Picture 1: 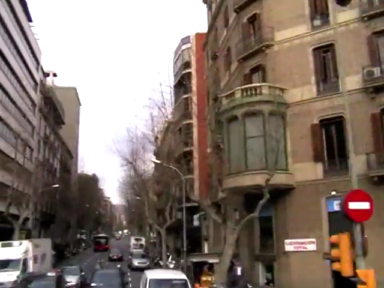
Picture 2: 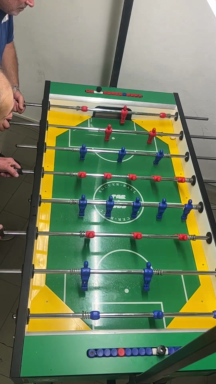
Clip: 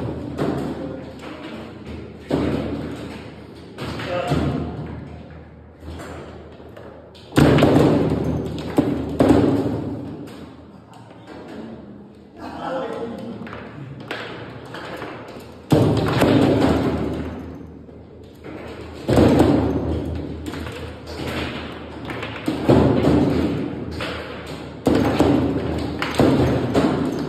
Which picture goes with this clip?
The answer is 2